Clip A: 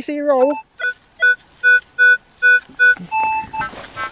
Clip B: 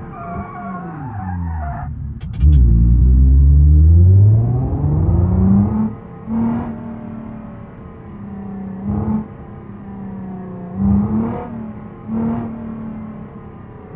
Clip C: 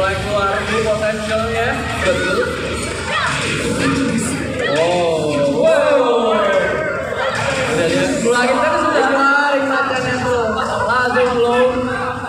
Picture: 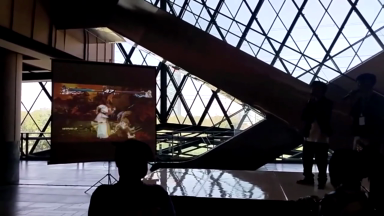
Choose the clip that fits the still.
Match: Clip C